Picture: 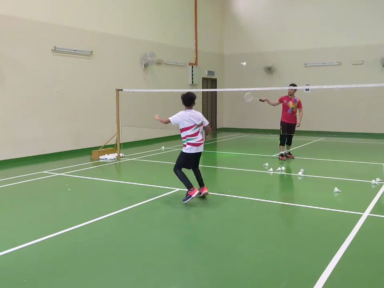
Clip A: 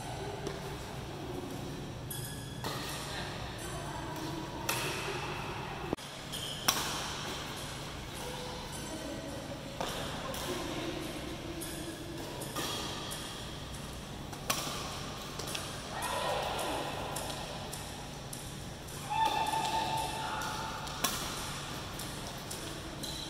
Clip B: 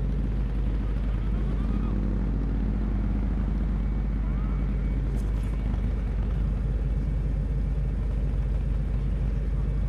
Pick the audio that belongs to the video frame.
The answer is A